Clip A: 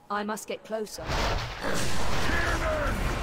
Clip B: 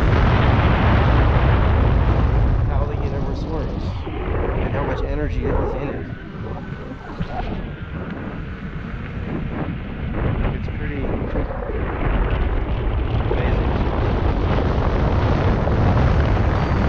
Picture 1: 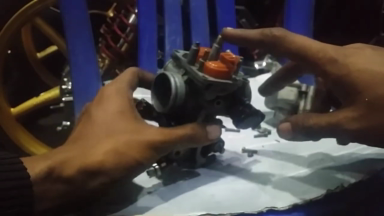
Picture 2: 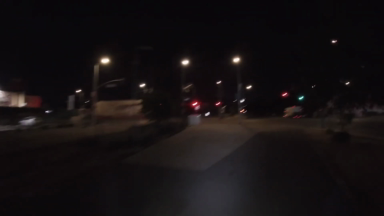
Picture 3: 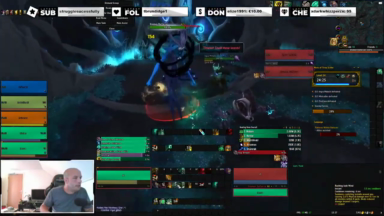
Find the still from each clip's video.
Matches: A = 3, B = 2